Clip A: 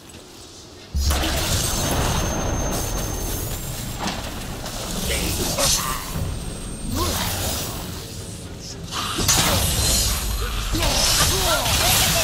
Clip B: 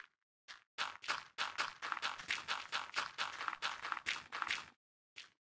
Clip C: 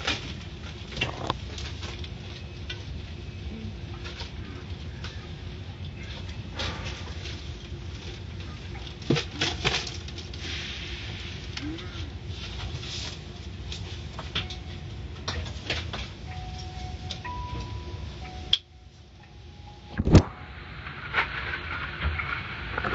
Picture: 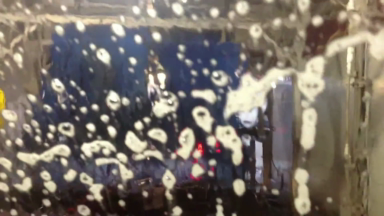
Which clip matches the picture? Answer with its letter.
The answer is C